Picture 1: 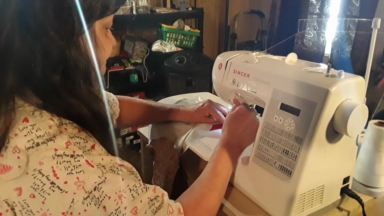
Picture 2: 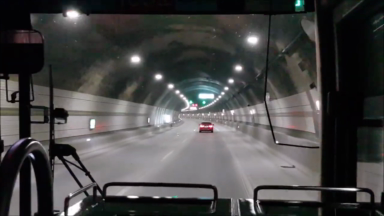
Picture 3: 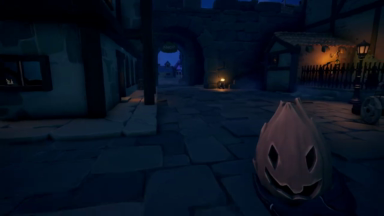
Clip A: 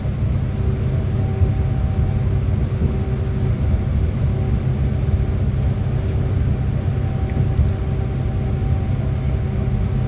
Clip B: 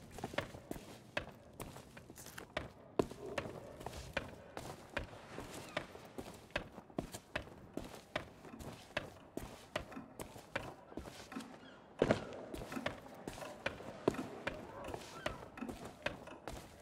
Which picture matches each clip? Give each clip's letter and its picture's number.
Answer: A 2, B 3